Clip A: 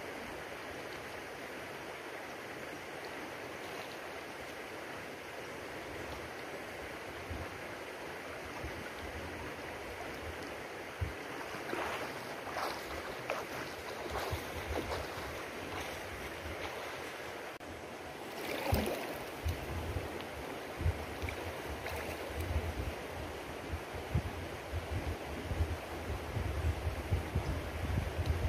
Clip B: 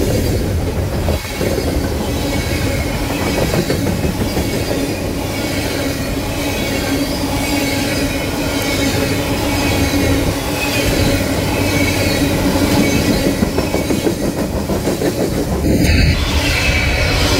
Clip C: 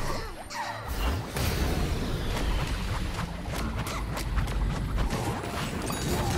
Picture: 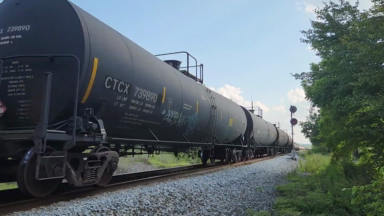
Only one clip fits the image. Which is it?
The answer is B